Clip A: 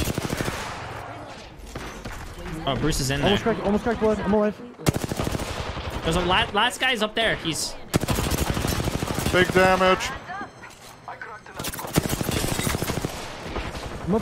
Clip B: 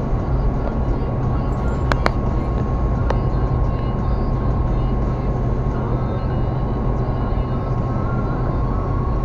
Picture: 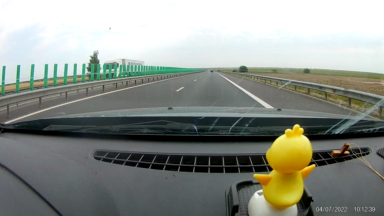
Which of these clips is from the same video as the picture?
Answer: B